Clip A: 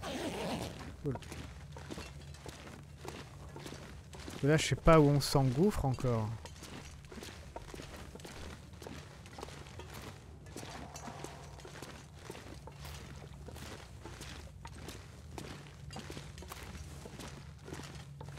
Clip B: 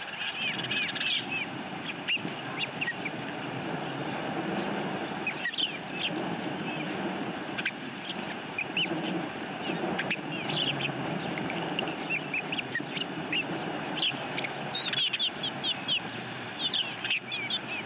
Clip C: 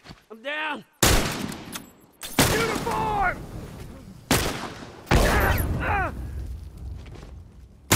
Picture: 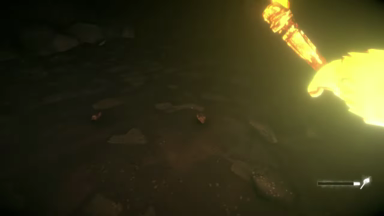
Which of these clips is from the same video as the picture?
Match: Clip A